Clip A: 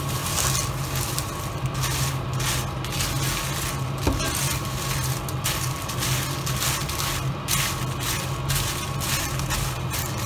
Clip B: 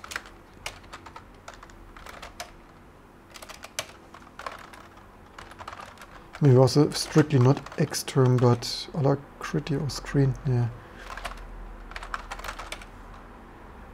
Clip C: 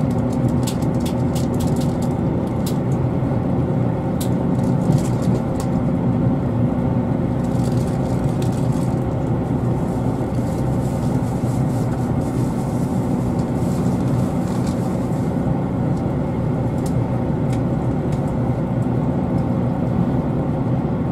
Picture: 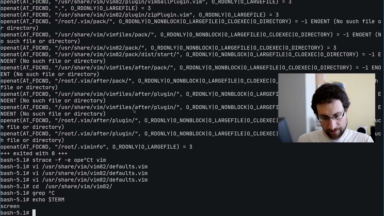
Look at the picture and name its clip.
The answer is B